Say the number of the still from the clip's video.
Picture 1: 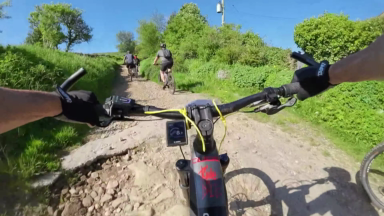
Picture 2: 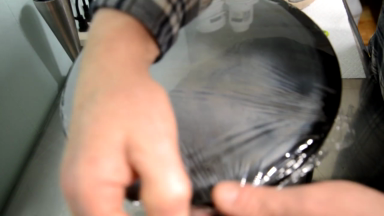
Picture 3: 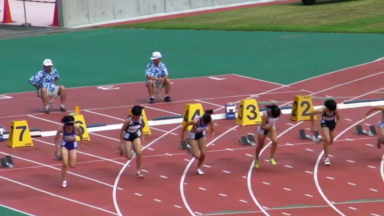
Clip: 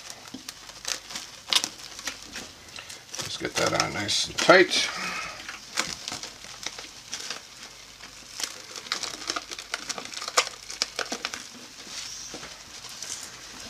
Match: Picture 2